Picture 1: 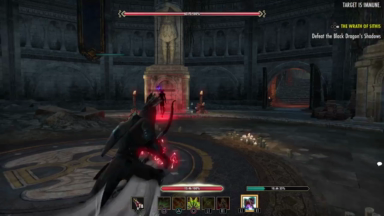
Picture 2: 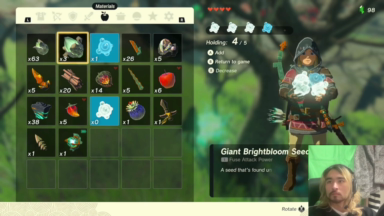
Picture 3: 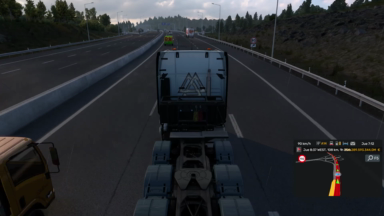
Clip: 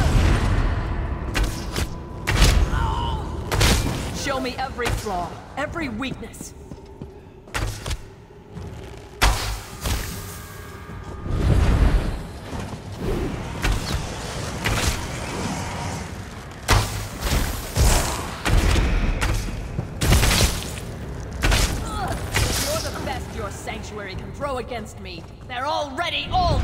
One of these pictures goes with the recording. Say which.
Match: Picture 1